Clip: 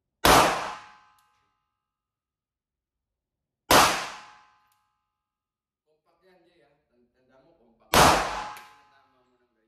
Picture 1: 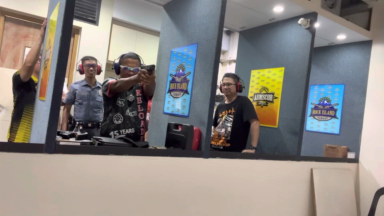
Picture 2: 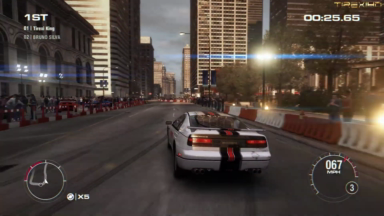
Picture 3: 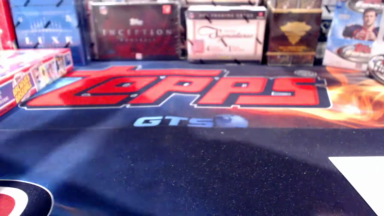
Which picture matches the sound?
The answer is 1